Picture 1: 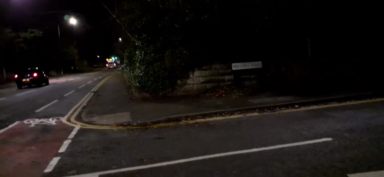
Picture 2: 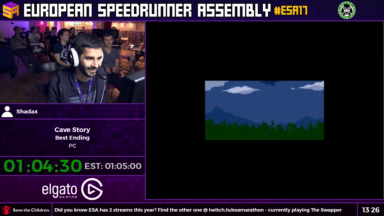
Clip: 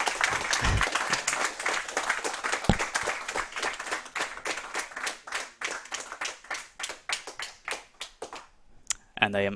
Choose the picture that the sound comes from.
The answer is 2